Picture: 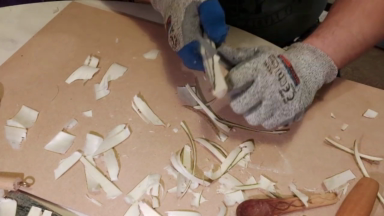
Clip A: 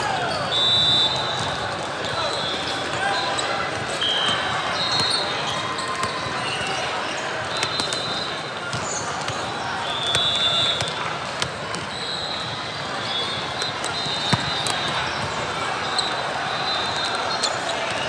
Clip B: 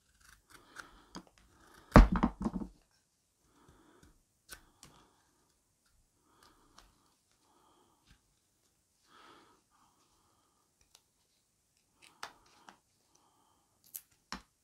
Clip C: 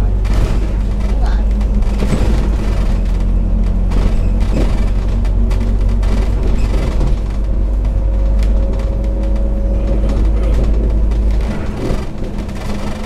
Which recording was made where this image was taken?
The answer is B